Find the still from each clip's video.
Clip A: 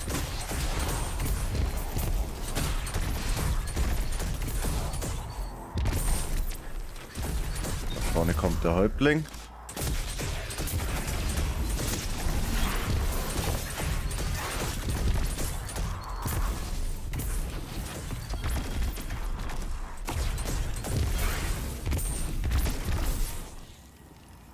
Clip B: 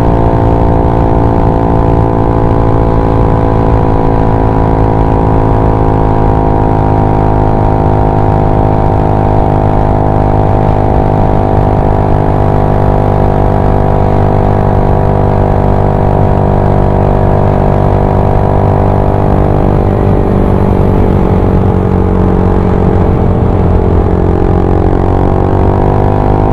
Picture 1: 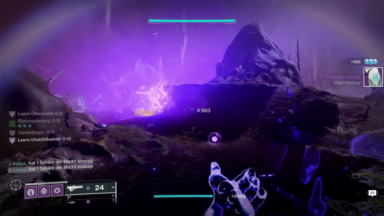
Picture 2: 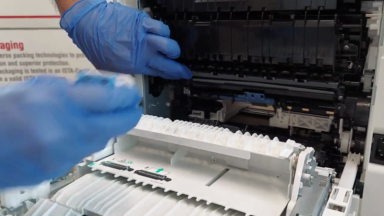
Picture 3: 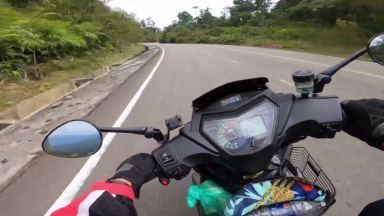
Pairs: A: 1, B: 3